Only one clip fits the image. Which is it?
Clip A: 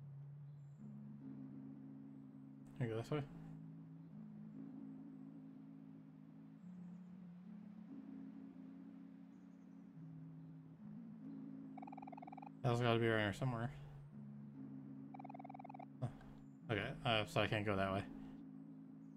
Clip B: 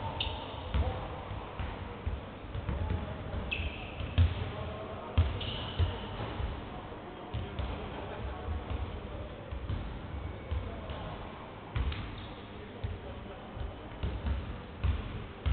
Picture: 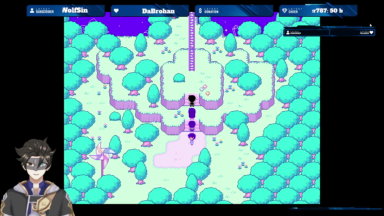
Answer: A